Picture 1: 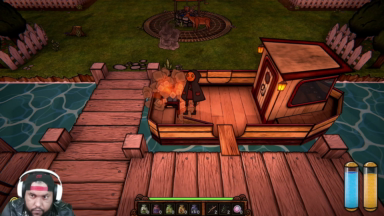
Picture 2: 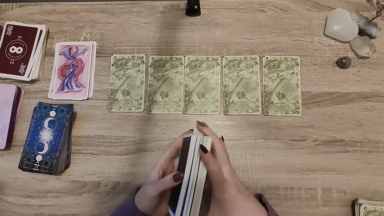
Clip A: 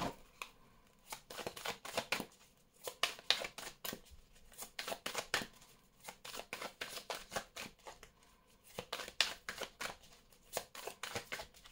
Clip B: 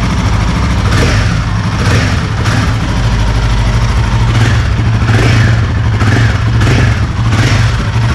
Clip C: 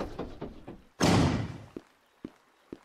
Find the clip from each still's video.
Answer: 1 C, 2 A